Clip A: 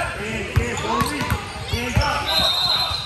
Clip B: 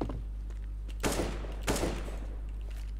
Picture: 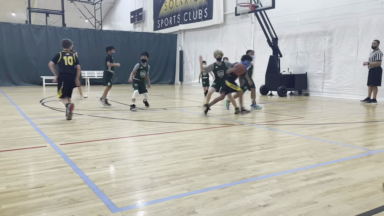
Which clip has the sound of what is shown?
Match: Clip A